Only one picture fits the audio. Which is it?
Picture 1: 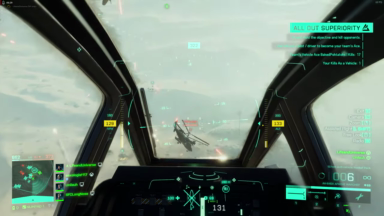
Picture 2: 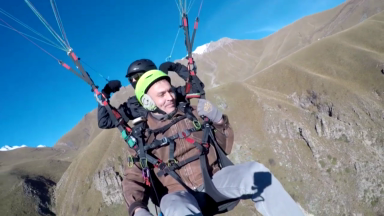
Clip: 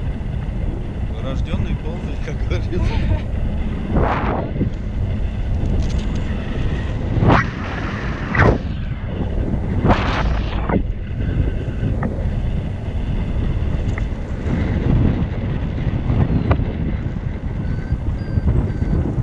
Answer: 2